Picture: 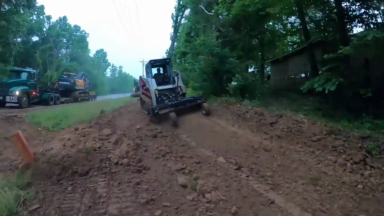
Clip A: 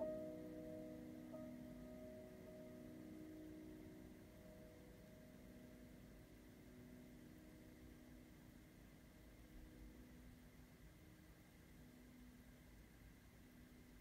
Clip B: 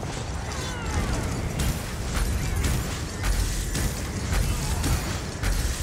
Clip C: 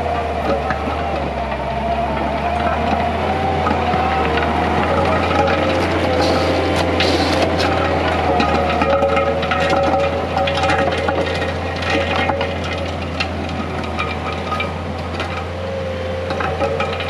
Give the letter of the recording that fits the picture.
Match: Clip C